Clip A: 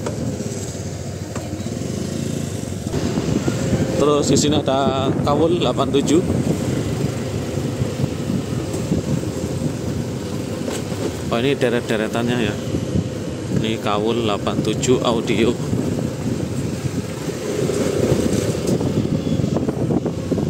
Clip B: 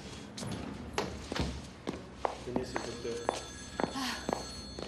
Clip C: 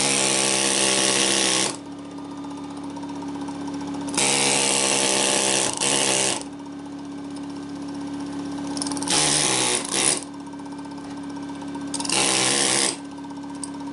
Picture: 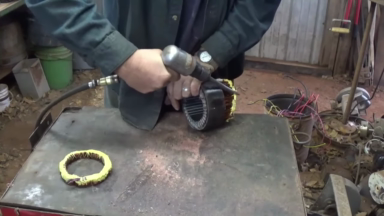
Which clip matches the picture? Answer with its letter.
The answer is C